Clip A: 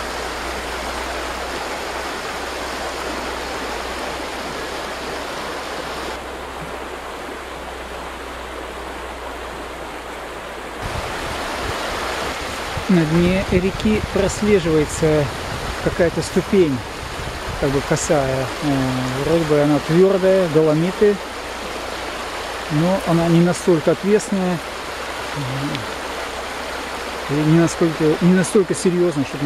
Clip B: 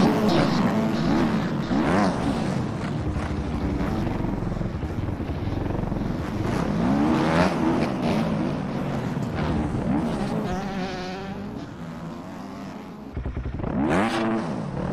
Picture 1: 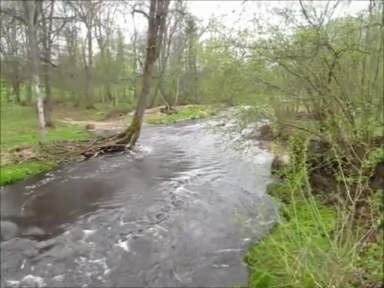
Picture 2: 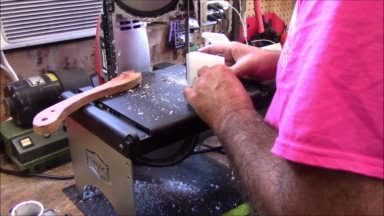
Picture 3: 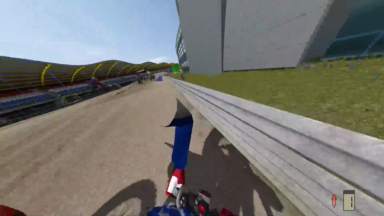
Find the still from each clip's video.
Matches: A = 1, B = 3